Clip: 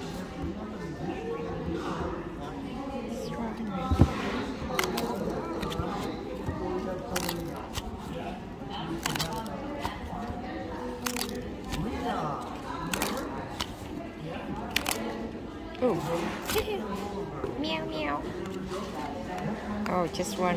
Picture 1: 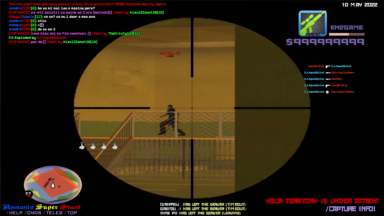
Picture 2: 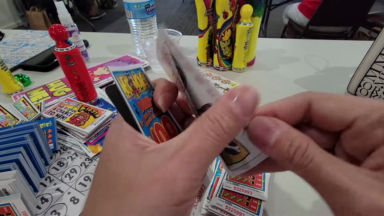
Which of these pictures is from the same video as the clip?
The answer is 2